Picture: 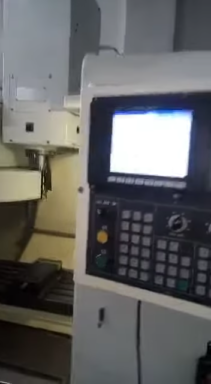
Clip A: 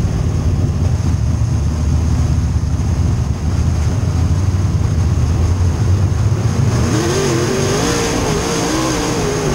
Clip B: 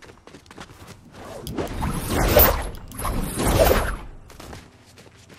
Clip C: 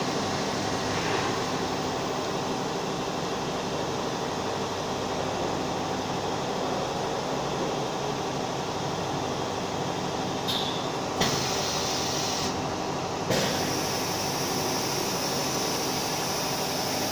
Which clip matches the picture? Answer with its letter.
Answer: C